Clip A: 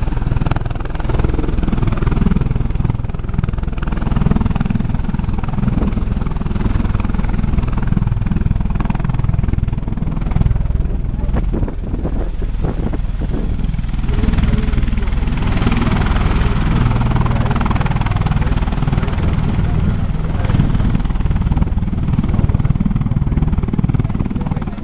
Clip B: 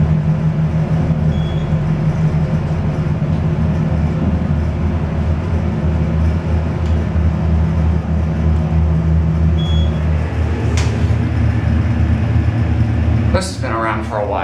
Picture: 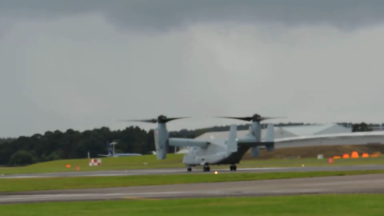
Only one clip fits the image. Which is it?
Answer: A